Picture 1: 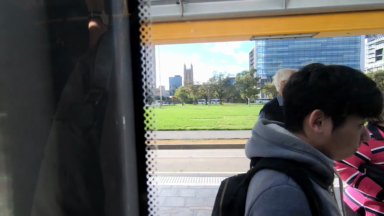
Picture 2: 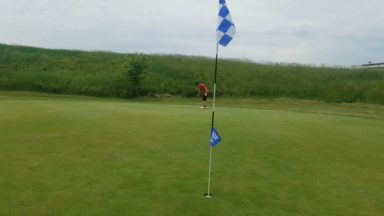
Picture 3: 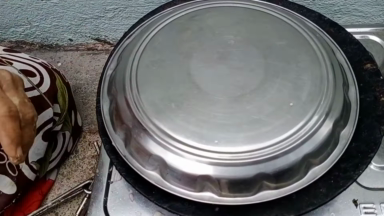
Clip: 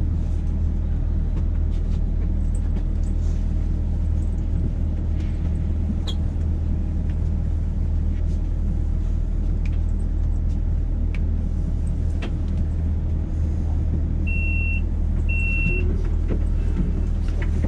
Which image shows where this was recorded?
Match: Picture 1